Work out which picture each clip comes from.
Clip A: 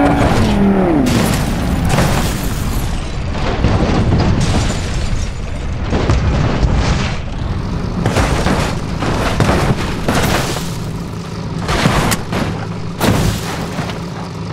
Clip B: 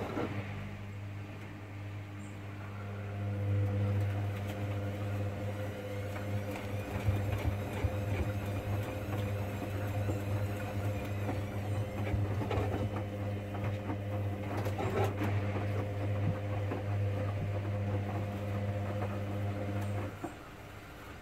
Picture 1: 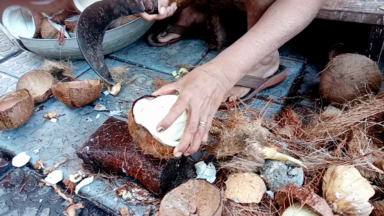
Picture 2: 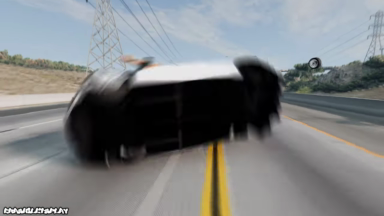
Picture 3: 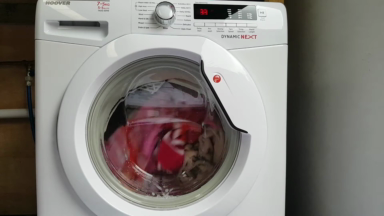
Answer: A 2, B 3